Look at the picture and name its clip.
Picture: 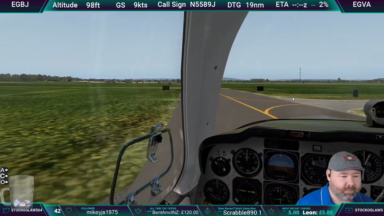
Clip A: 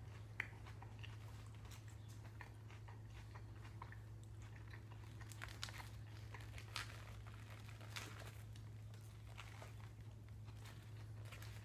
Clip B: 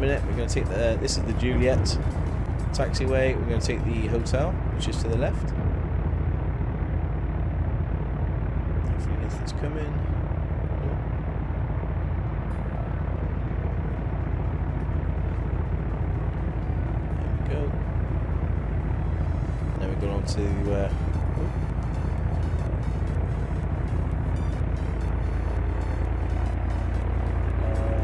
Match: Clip B